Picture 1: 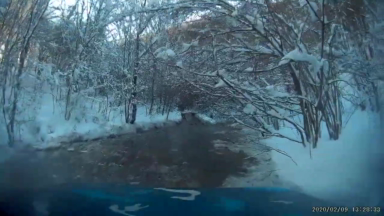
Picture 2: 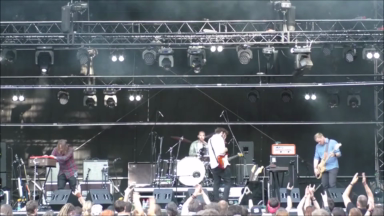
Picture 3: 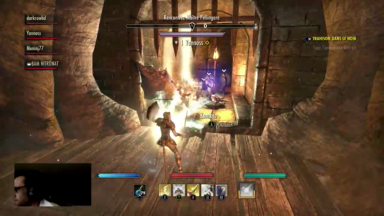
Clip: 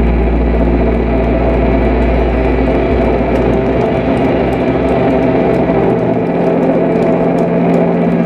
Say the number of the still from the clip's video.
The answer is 2